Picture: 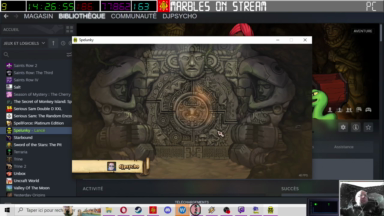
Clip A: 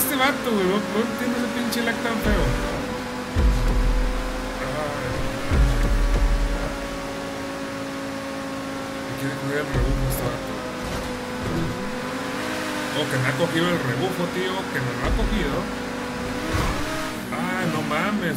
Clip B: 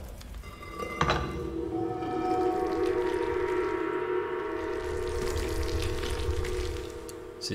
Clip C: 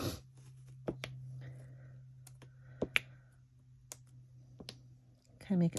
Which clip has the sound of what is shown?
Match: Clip B